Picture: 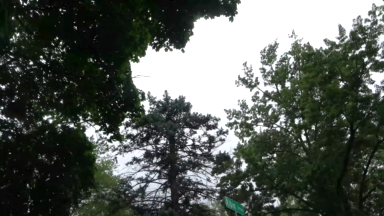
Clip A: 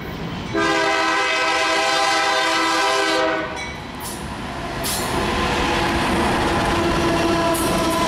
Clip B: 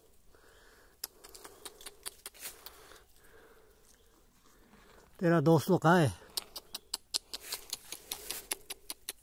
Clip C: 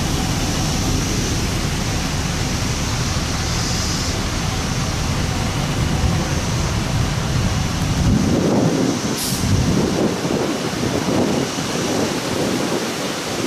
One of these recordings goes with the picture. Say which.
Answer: C